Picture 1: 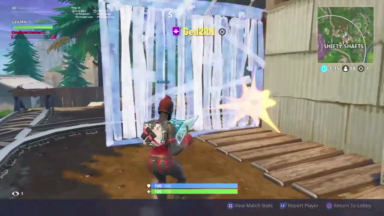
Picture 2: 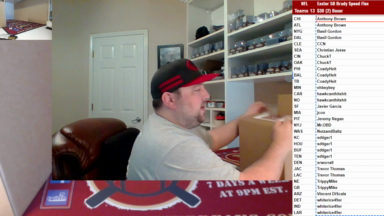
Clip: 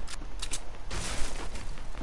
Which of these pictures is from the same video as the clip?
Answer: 1